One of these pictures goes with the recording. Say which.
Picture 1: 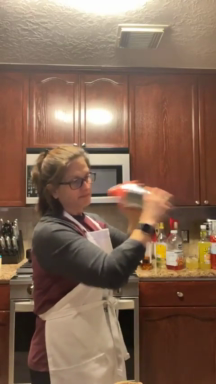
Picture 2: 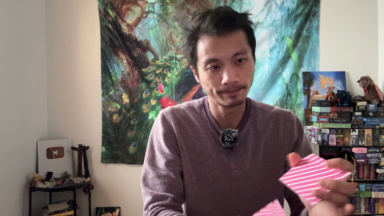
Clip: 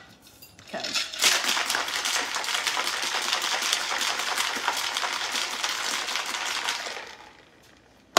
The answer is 1